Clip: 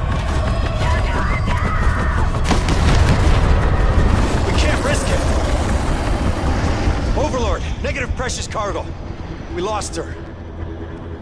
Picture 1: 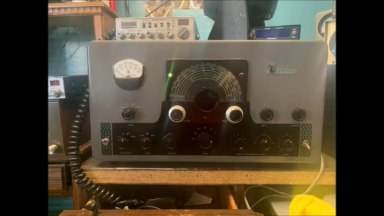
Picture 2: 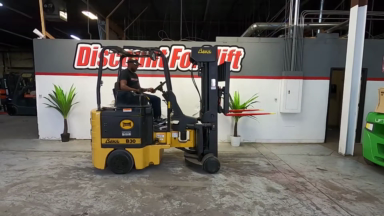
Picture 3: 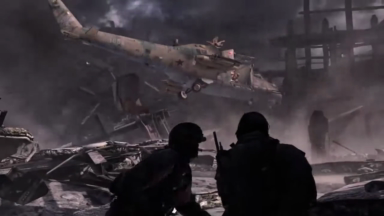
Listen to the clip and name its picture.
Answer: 3